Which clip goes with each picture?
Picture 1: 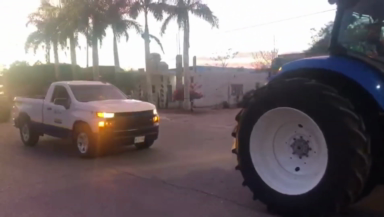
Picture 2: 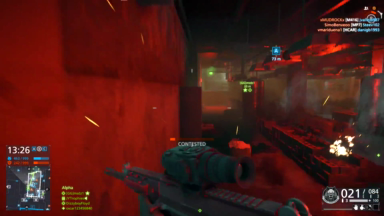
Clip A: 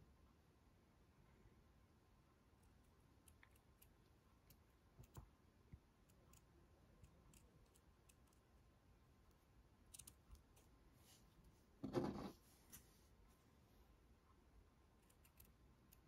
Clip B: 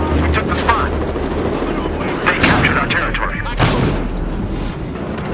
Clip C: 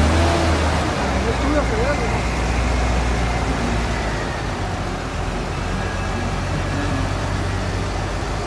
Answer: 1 C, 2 B